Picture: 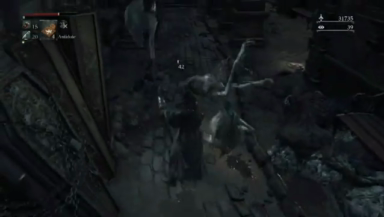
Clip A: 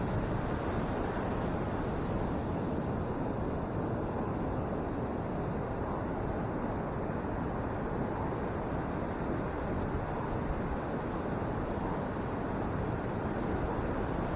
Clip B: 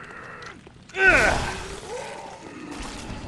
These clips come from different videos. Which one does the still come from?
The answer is B